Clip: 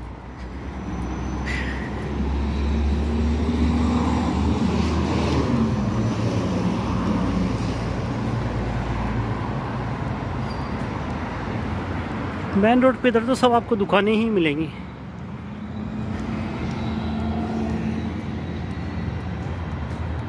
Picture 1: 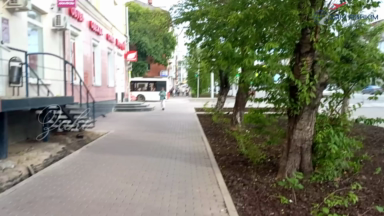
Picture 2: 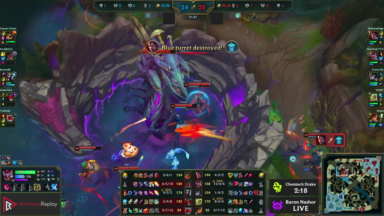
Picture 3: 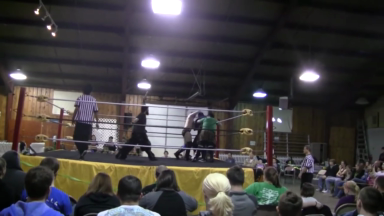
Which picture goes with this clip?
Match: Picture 1